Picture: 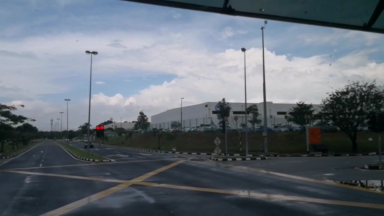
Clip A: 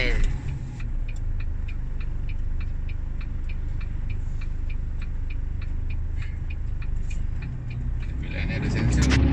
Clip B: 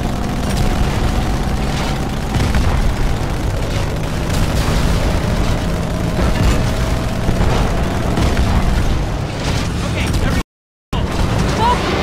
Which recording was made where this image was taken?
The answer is A